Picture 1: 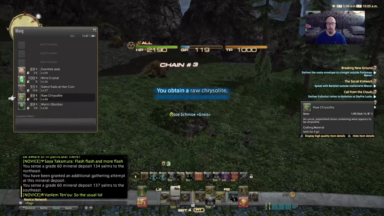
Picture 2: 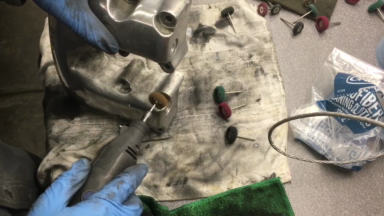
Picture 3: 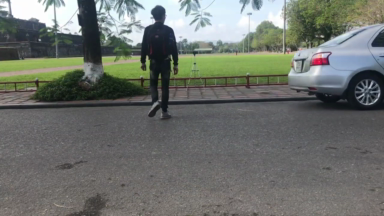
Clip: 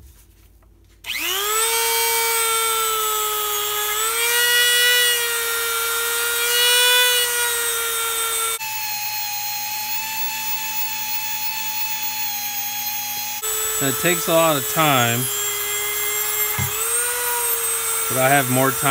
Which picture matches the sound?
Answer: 2